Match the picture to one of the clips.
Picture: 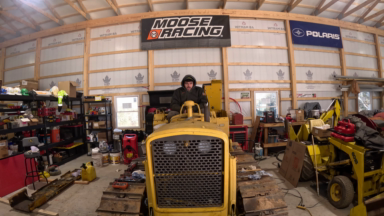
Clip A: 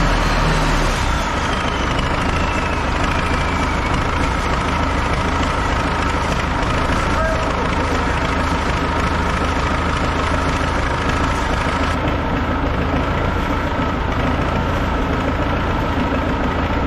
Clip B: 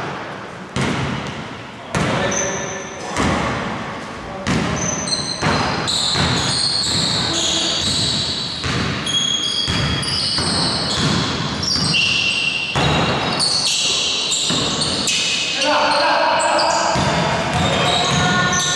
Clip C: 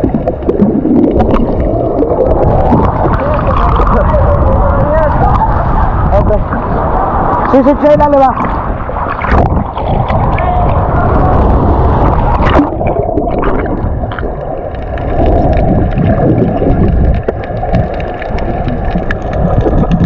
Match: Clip A